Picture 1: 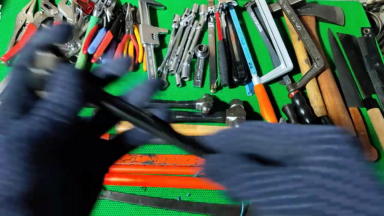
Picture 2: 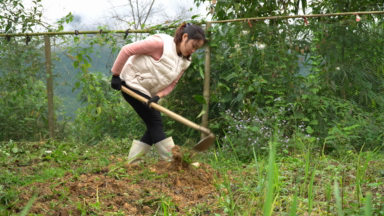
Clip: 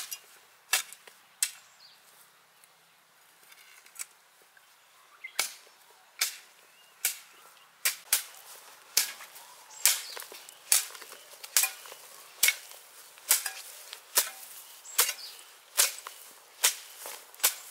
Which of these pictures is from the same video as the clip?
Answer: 2